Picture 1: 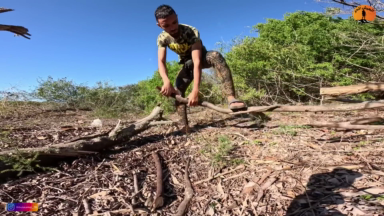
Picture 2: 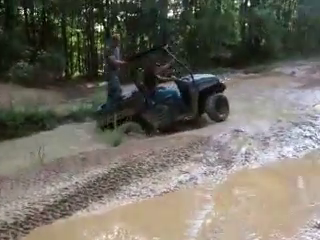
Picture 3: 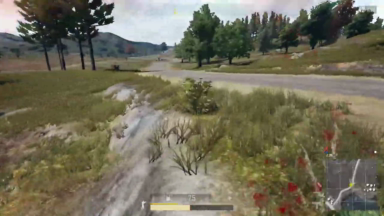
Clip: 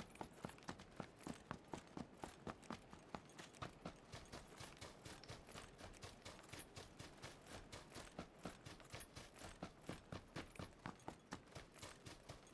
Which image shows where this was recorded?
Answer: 3